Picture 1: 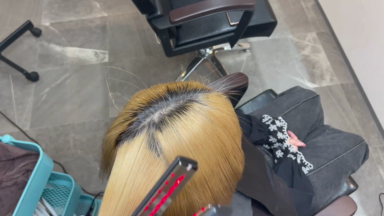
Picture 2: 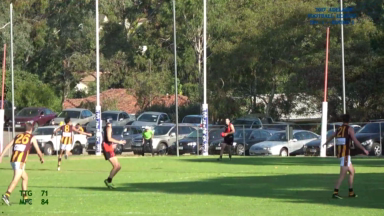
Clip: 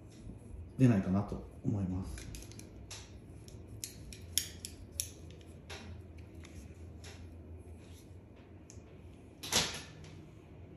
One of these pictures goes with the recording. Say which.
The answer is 1